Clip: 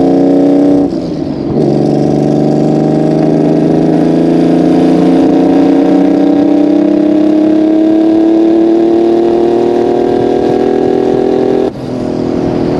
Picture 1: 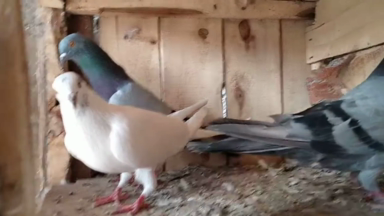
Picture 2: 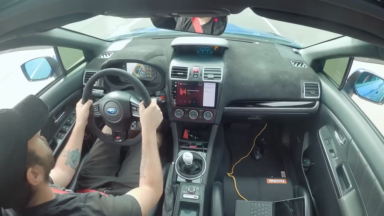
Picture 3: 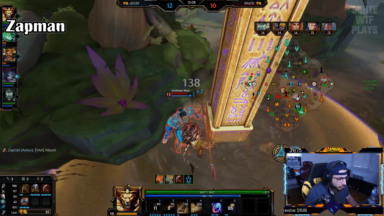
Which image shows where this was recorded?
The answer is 2